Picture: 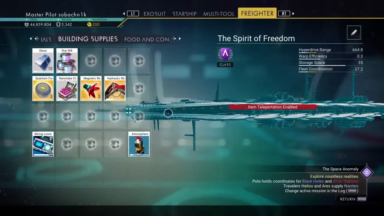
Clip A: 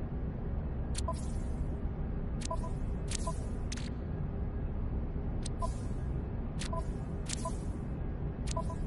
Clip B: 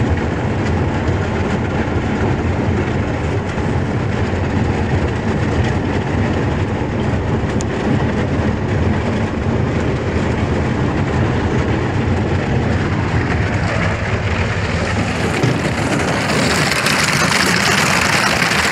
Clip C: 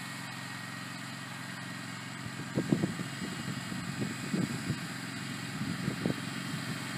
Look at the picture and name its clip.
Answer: A